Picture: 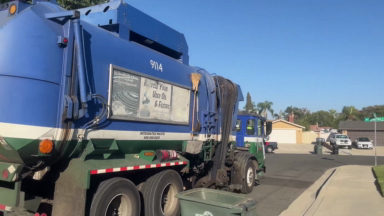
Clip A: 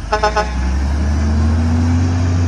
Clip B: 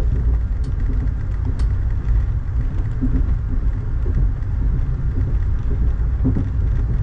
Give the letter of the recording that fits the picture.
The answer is A